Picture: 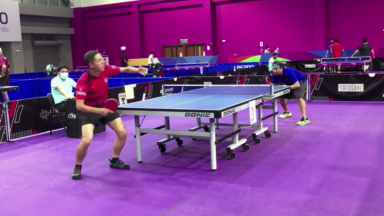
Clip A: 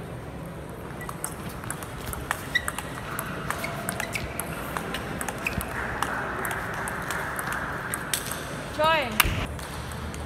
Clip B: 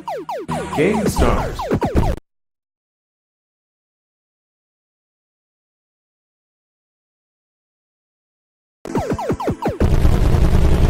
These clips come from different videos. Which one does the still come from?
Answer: A